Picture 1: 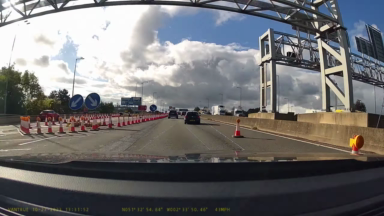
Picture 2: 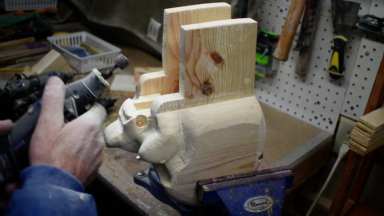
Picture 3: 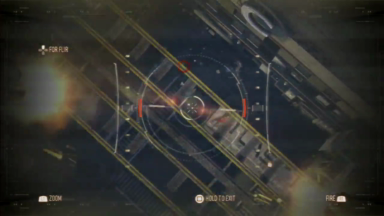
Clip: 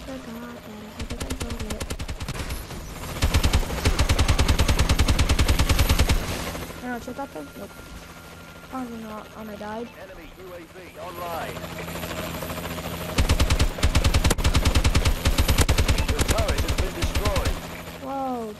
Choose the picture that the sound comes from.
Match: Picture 3